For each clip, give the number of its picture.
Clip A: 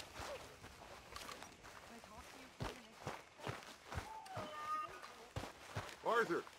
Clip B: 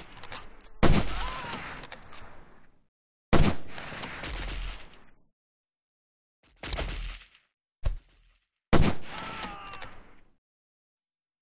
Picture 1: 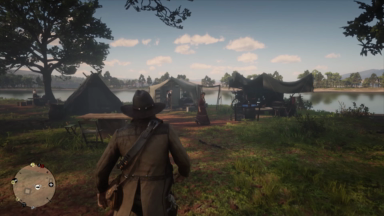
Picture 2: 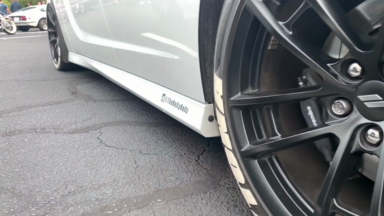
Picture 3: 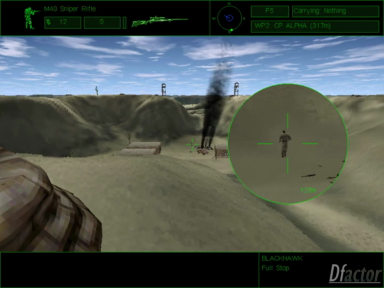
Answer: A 1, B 3